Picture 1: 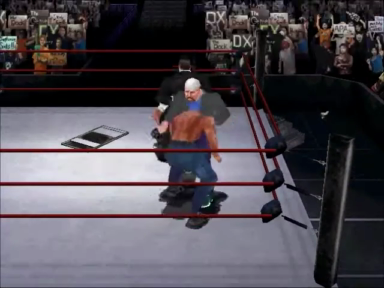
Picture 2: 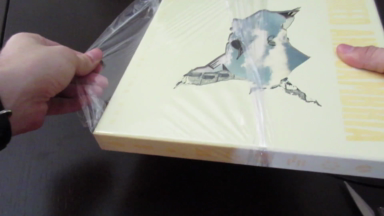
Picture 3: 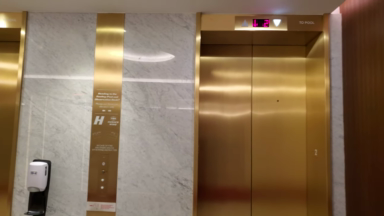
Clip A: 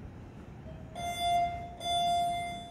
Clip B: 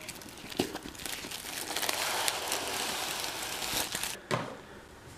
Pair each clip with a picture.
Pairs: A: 3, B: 2